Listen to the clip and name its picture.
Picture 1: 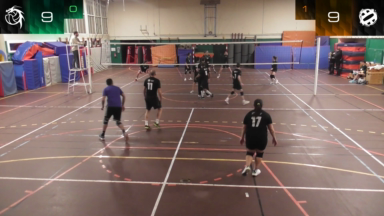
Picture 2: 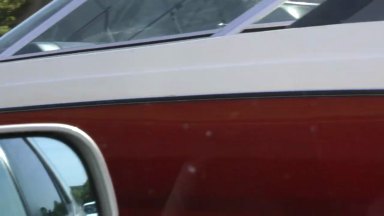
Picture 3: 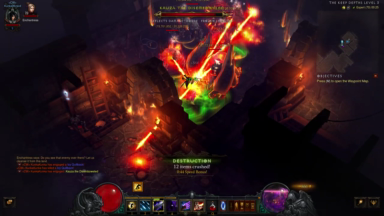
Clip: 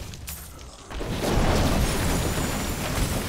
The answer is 3